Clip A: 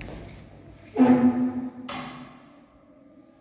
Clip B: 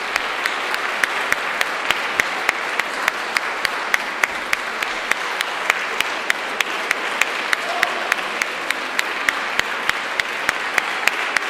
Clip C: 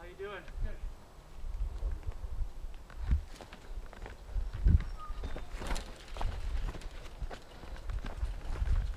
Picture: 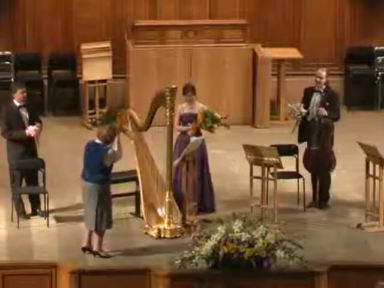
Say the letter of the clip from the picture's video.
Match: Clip B